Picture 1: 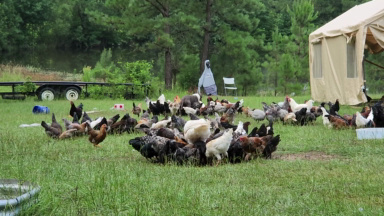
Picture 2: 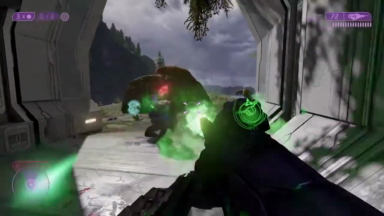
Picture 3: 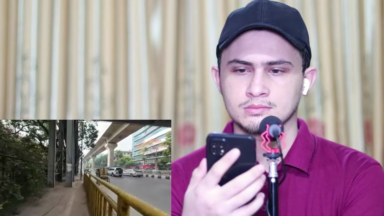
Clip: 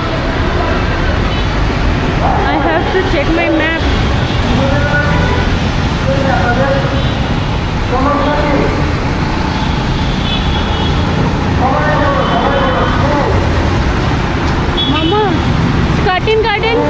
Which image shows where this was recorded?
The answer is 3